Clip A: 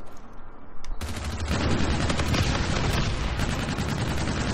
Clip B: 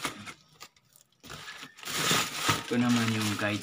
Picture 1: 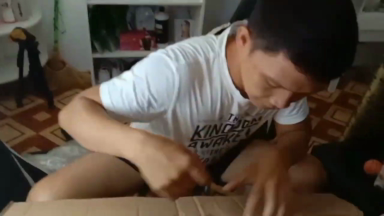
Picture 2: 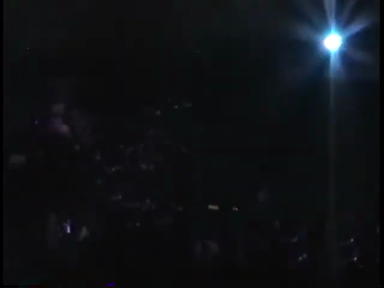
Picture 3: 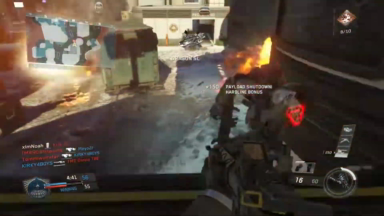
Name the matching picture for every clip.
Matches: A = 3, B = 1